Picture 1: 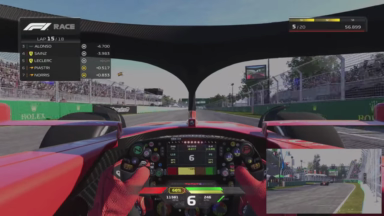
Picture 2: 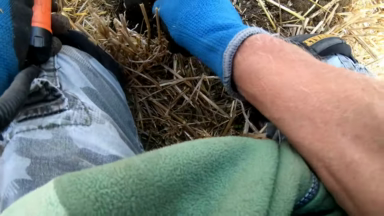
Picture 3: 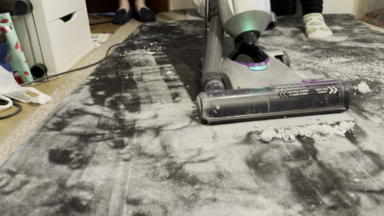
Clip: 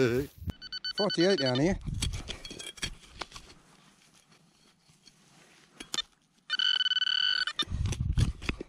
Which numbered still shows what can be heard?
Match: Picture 2